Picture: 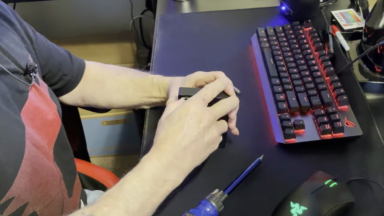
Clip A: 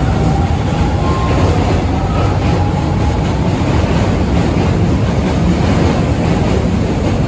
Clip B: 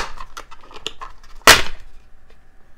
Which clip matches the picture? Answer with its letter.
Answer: B